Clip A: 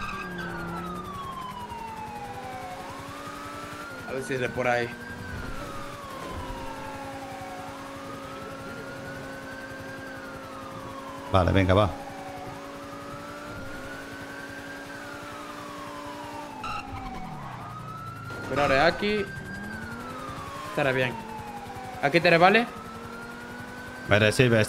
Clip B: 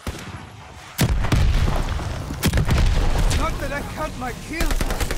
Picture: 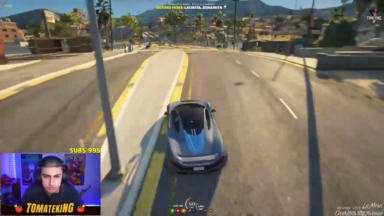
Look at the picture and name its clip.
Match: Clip A